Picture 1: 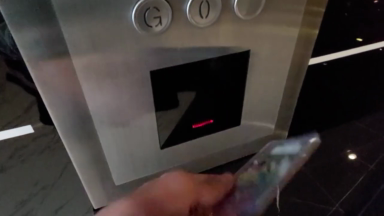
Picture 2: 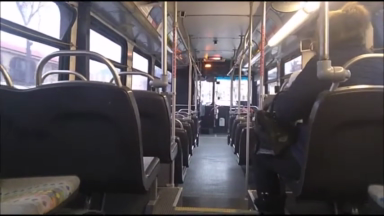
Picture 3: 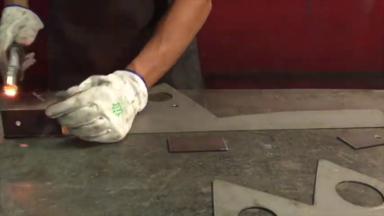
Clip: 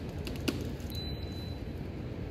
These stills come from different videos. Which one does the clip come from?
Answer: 1